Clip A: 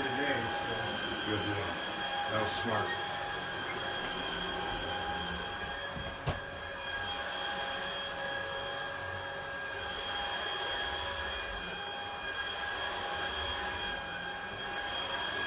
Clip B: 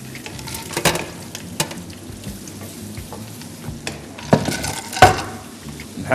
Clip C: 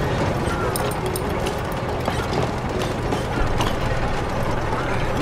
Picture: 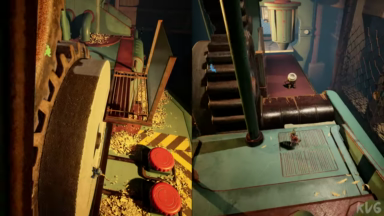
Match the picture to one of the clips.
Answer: C